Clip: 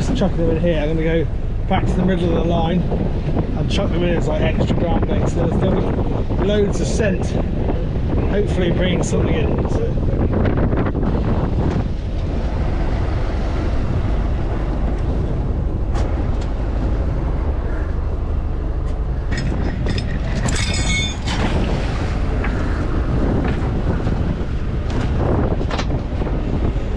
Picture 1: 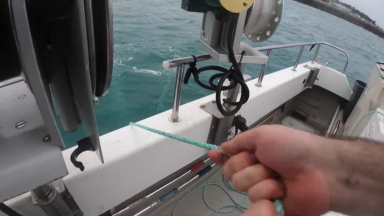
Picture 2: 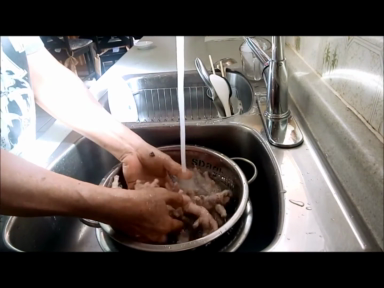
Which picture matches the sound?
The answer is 1